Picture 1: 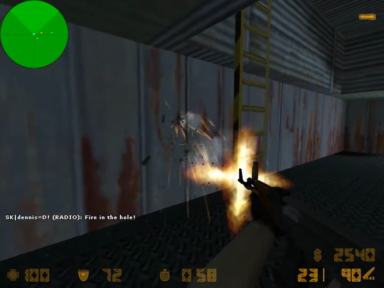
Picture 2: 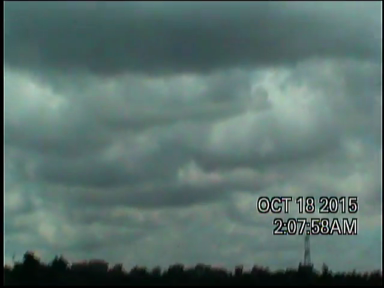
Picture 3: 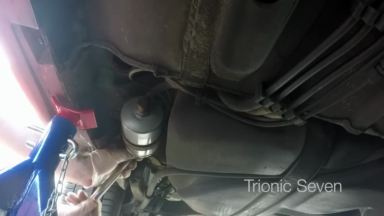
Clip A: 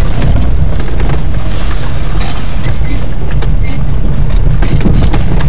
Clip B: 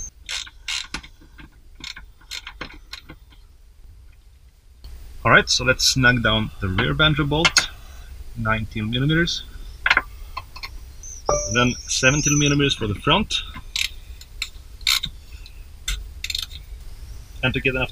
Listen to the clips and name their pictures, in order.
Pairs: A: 2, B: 3